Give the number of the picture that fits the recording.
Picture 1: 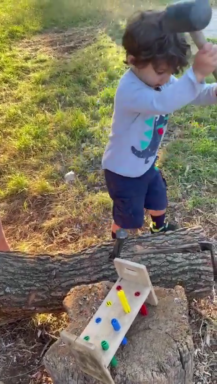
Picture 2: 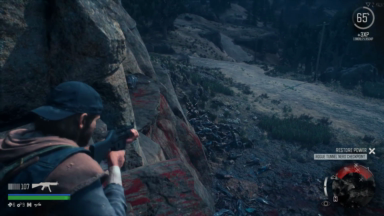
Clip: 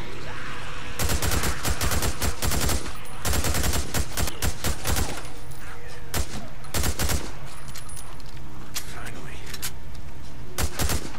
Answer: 2